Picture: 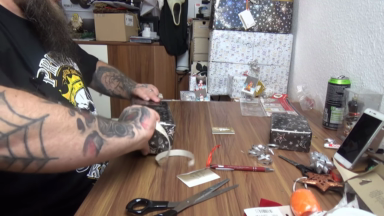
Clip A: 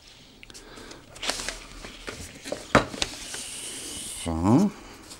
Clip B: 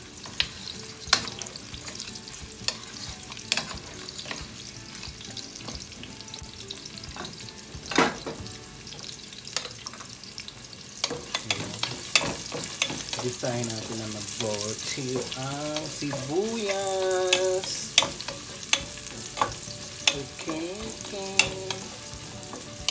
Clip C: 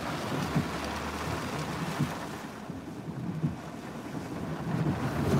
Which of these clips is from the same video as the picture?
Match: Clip A